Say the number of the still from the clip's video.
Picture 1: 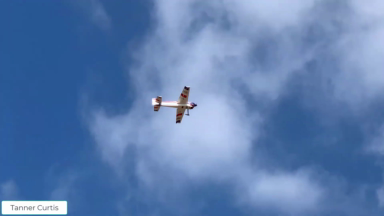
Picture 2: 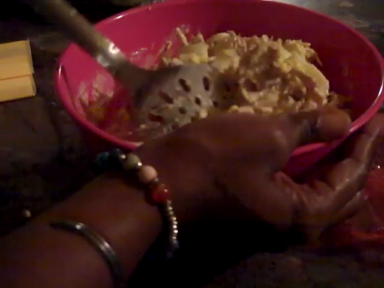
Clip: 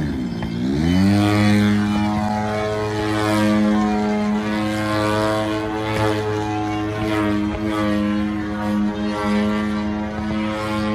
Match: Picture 1